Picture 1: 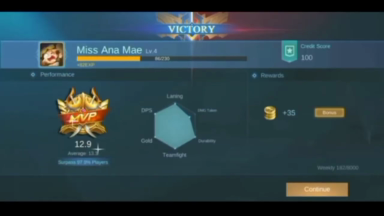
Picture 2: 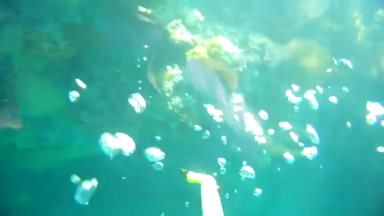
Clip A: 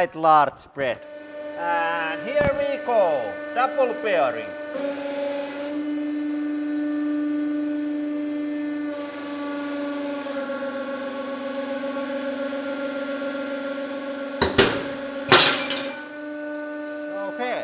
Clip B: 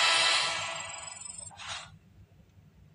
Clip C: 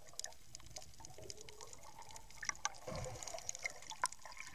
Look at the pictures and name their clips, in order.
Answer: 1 B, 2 C